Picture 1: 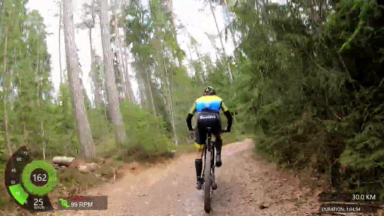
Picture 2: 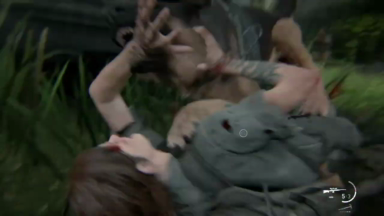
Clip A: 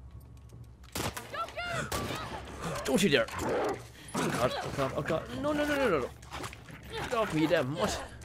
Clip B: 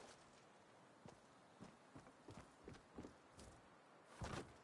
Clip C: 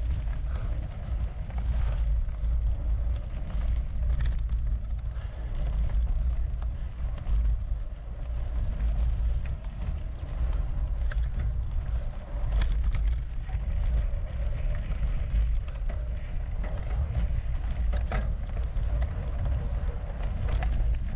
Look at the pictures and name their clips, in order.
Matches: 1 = C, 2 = A